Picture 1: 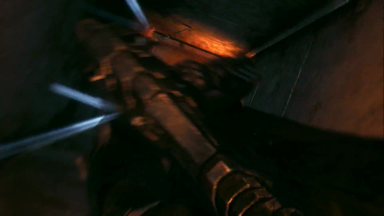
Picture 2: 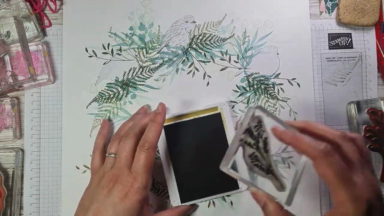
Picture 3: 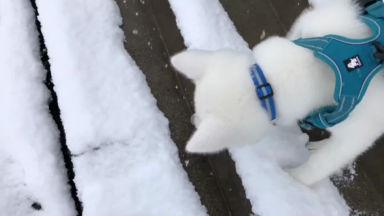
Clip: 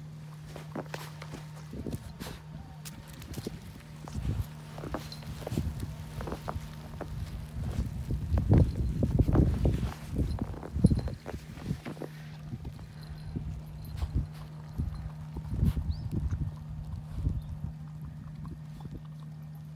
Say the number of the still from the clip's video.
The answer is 3